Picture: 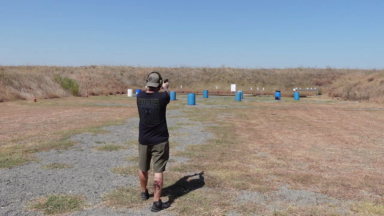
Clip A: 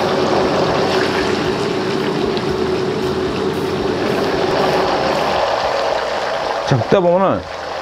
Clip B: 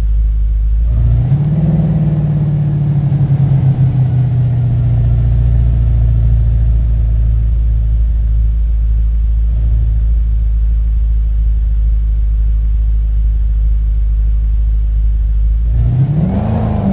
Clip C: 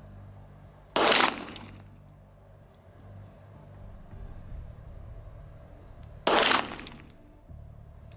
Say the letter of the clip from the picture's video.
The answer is C